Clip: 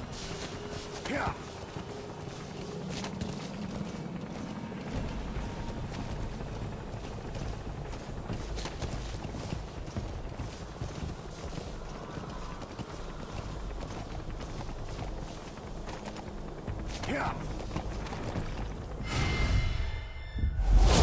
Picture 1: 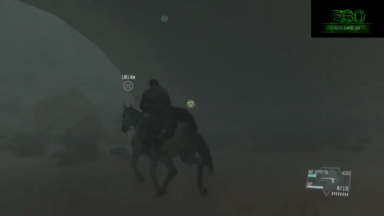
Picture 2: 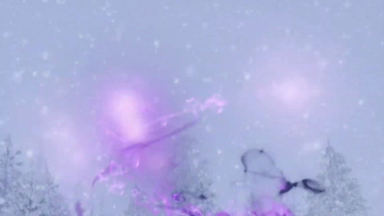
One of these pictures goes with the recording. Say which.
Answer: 1